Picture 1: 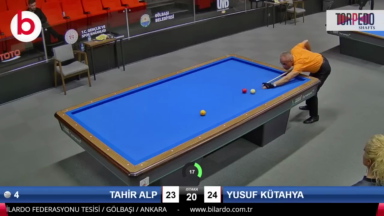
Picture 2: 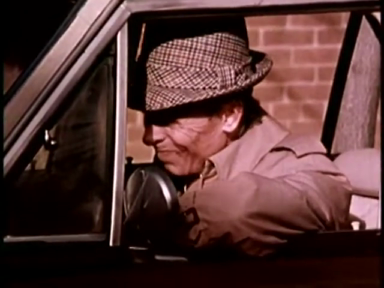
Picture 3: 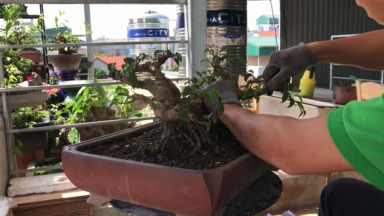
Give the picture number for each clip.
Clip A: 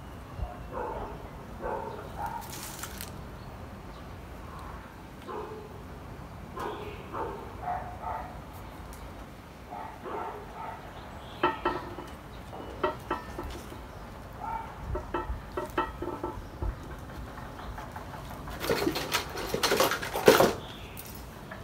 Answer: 3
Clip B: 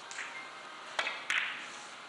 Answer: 1